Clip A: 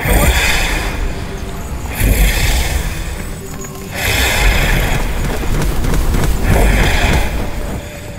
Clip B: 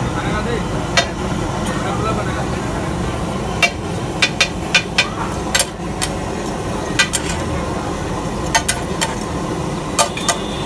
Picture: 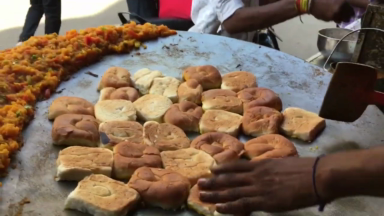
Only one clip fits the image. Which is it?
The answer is B